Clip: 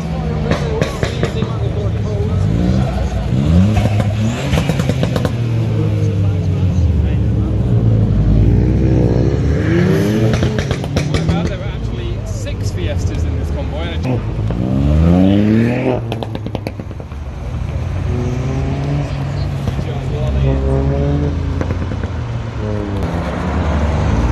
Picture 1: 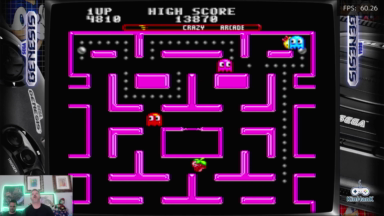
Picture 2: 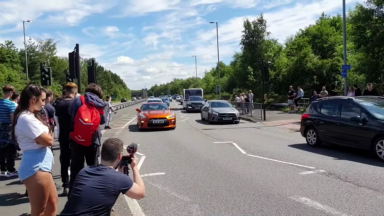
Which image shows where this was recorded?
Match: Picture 2